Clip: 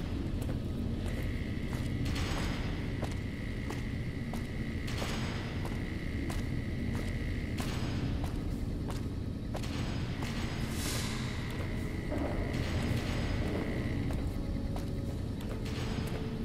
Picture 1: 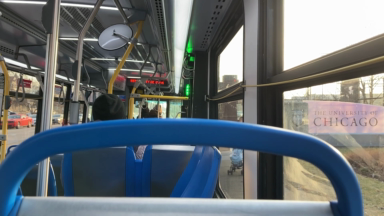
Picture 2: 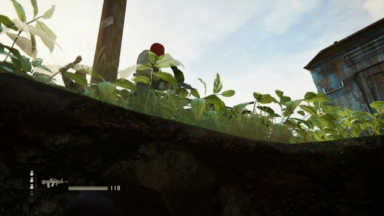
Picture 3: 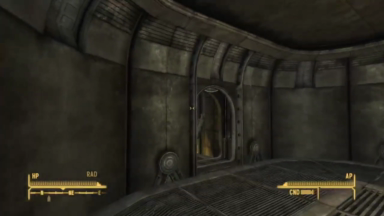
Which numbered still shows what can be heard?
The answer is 3